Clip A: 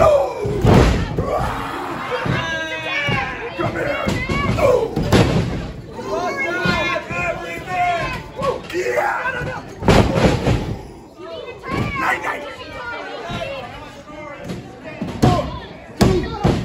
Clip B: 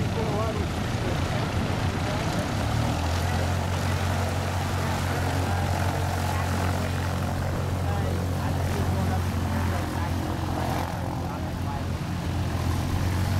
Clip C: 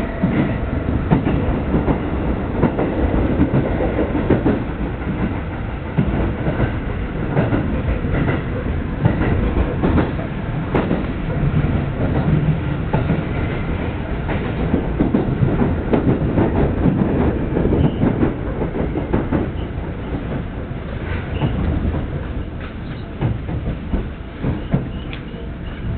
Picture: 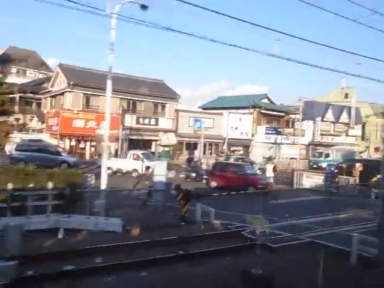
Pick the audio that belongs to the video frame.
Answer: C